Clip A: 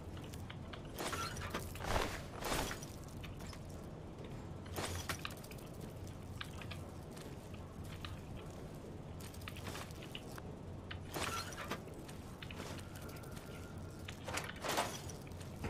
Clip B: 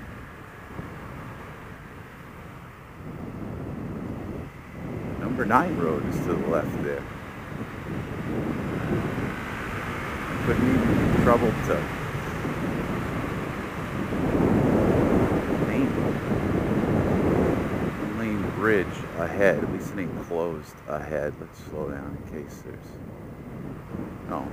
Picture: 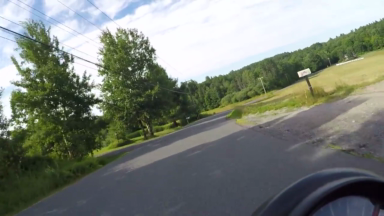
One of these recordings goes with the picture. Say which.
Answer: B